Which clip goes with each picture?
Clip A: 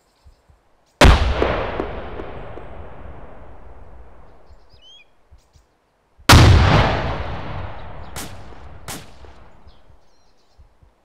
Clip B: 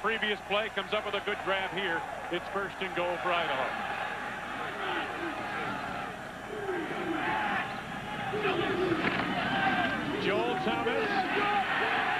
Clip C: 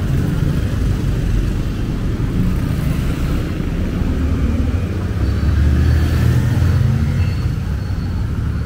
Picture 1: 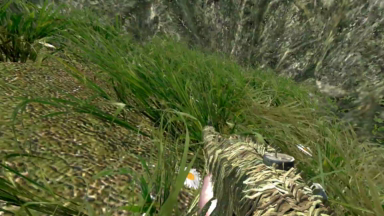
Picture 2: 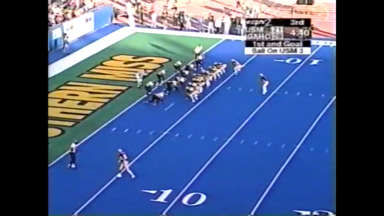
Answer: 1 A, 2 B